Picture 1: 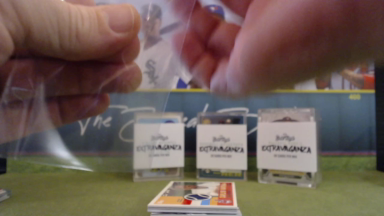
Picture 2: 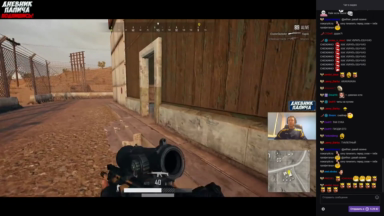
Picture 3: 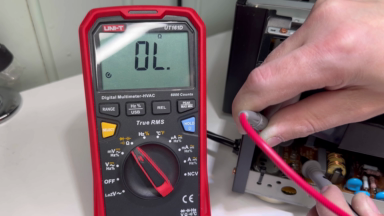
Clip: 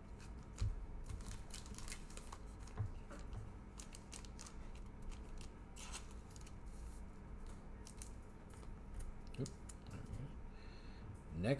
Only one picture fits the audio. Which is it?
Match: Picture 1